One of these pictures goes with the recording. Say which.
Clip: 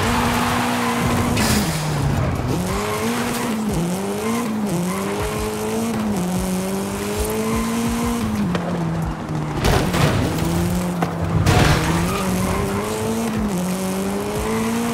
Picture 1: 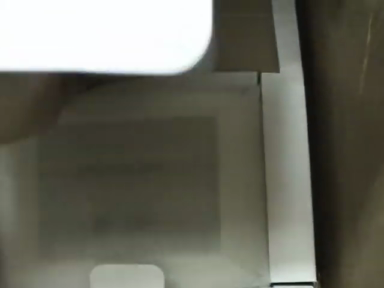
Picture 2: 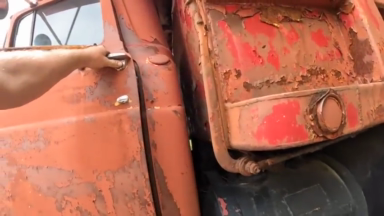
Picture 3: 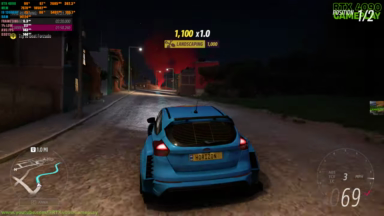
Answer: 3